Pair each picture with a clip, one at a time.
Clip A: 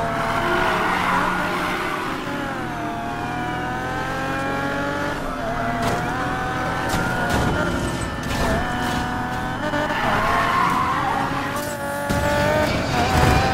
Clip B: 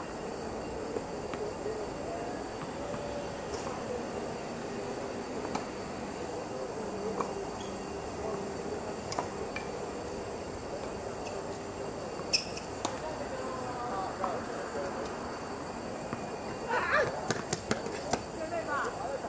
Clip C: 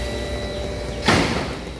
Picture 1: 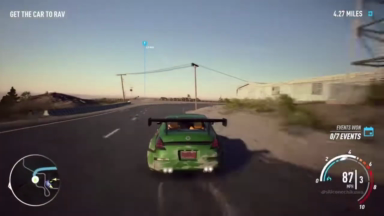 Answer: A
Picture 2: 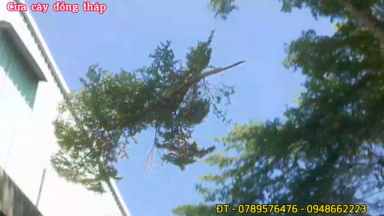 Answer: C